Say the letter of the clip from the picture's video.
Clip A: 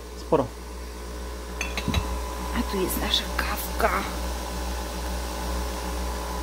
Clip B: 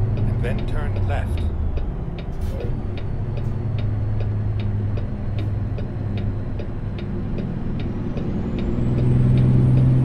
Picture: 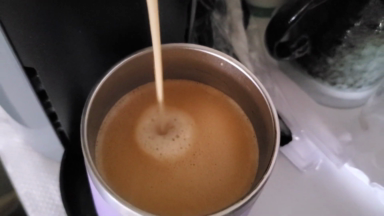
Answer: A